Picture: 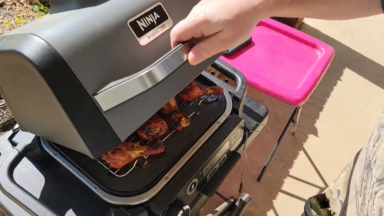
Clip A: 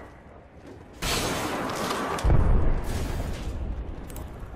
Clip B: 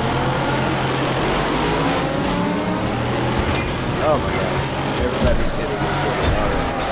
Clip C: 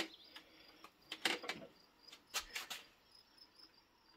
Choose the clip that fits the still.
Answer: C